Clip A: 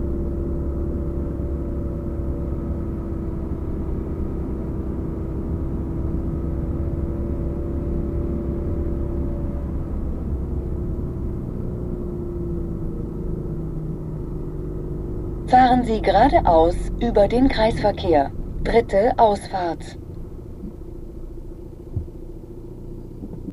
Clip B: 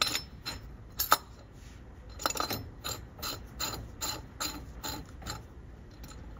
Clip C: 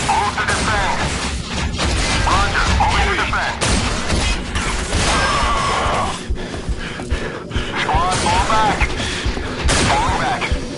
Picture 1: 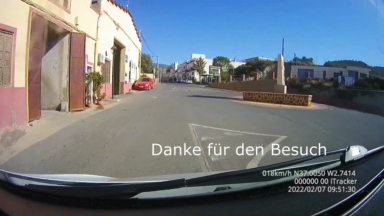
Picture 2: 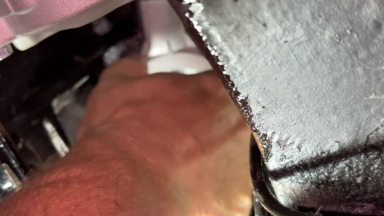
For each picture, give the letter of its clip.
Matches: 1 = A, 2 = B